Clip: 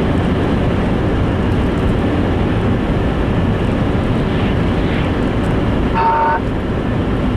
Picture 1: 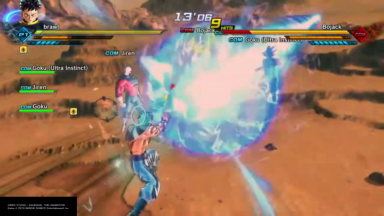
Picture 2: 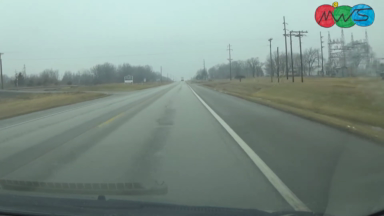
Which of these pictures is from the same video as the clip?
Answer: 2